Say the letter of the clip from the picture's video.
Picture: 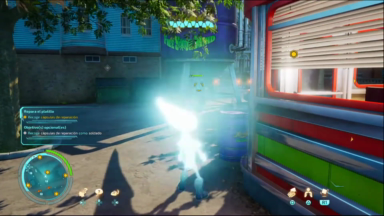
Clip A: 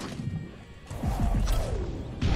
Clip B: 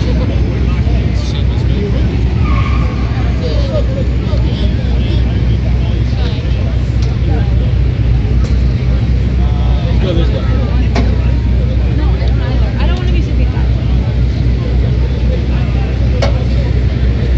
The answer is A